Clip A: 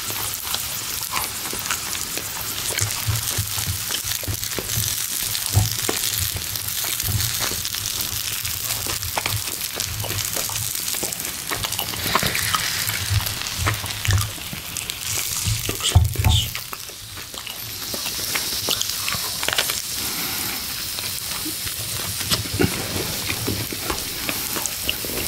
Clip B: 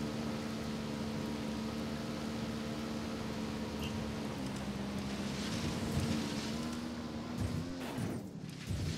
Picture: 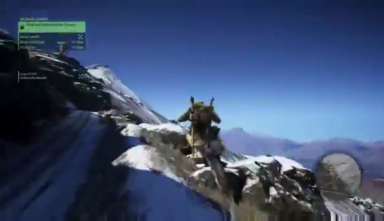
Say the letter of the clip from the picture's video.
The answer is B